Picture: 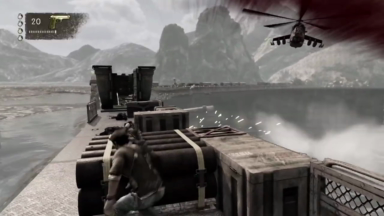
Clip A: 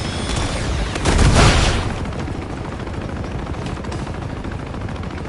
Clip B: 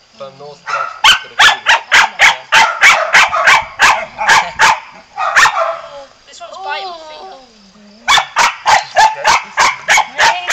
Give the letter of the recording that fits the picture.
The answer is A